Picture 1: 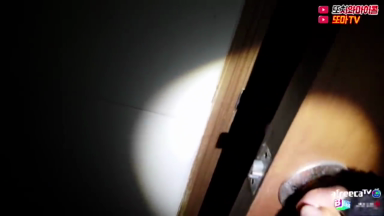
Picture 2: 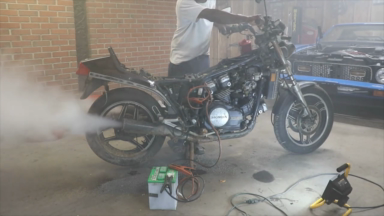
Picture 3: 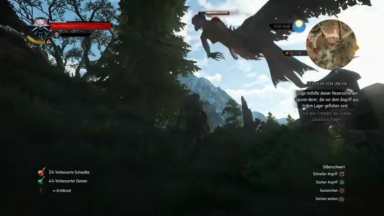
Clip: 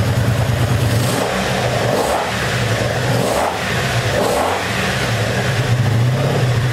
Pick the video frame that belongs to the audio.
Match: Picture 2